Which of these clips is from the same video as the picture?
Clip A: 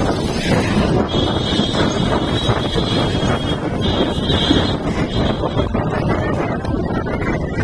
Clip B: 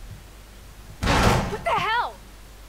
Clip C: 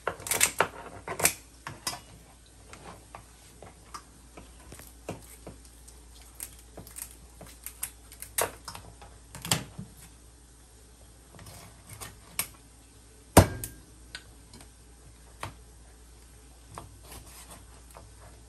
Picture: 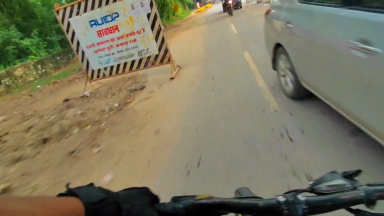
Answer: A